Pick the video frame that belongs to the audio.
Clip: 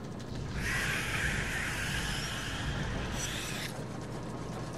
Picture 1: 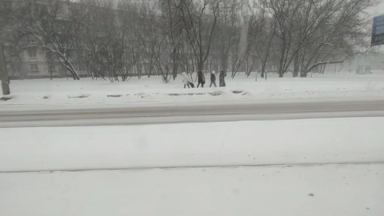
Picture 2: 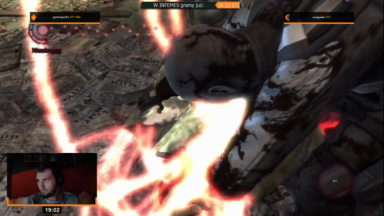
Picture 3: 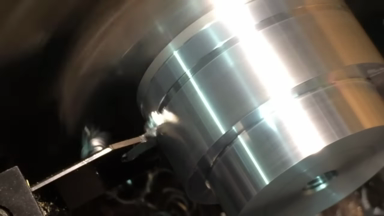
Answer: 2